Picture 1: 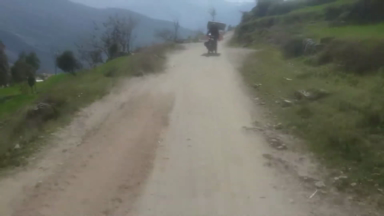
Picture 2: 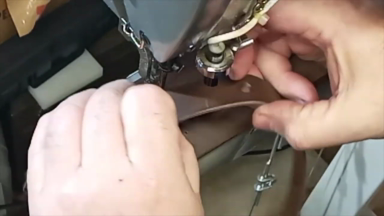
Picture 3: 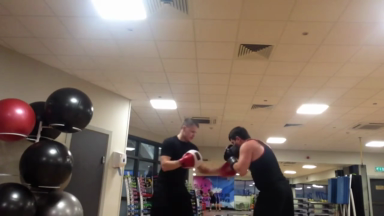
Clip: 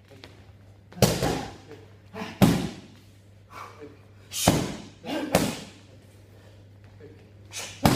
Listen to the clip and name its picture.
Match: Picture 3